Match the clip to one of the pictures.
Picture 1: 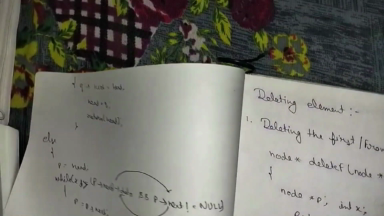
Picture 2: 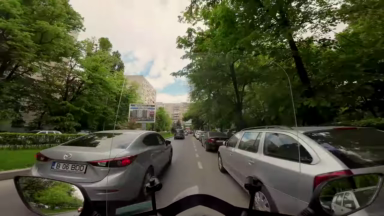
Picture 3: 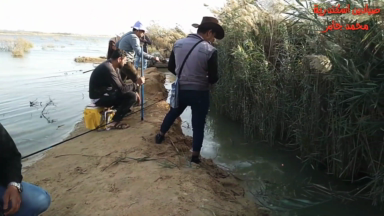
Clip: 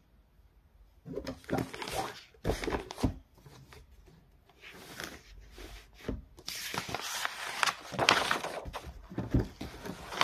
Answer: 1